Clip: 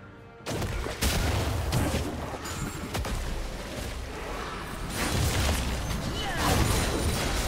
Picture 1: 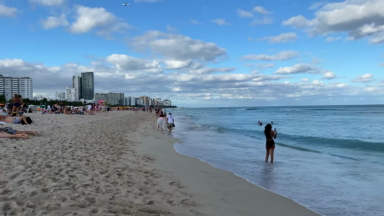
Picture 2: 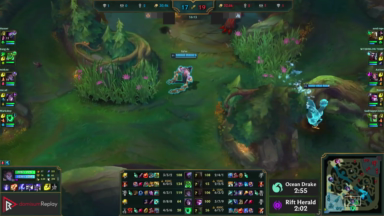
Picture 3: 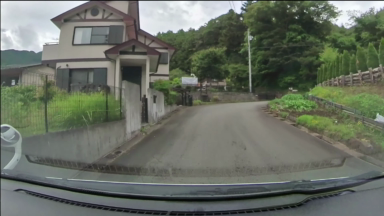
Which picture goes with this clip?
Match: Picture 2